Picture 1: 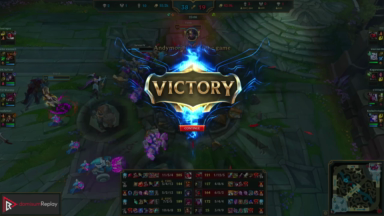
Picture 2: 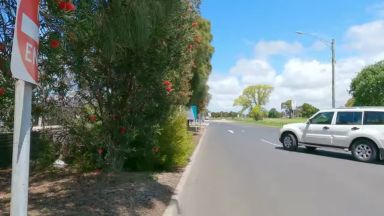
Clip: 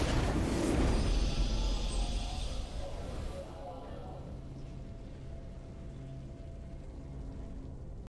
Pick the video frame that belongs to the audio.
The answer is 1